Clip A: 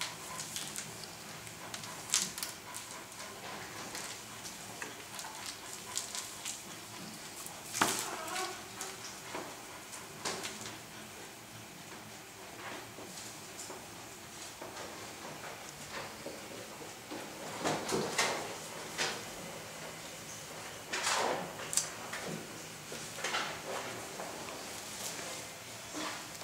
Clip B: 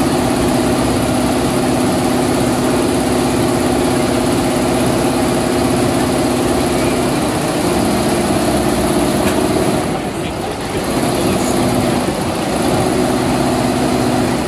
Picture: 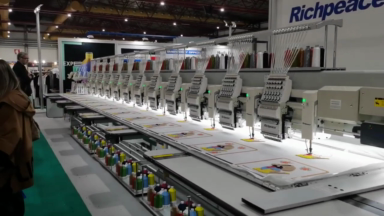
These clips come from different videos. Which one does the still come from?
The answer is B